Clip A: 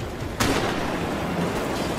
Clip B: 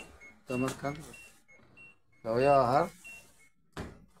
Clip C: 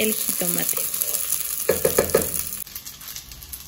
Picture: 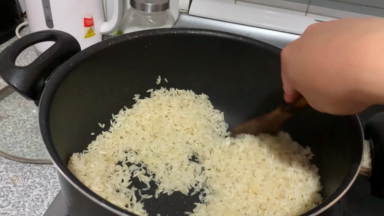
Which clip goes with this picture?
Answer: C